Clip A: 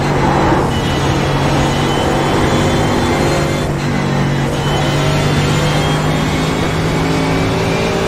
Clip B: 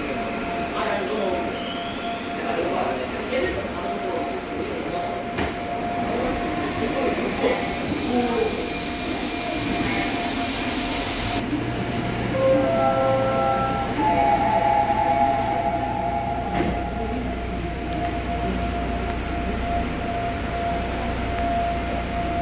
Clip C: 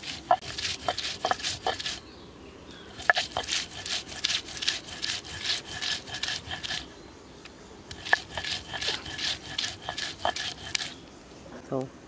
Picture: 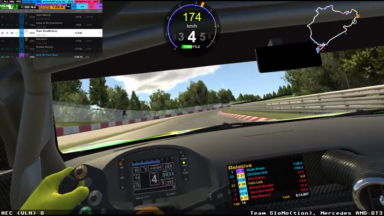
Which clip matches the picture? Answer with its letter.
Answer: A